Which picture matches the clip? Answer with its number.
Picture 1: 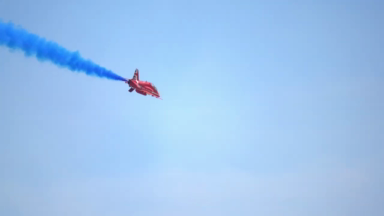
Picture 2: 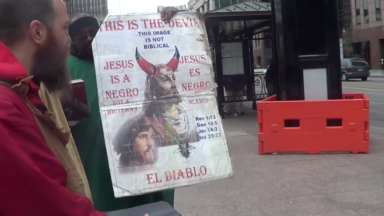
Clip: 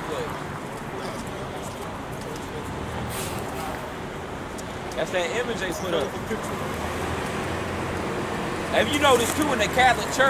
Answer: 2